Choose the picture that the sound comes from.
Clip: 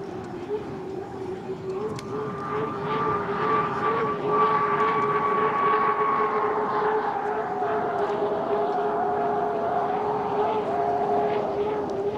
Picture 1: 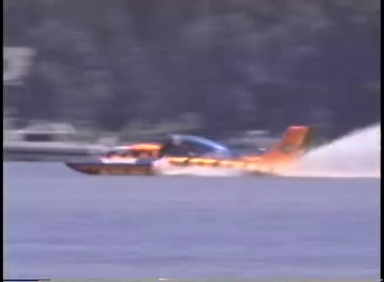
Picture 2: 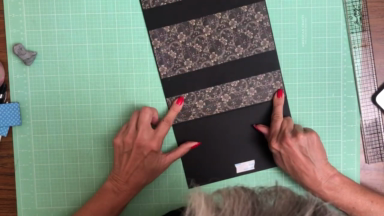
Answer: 1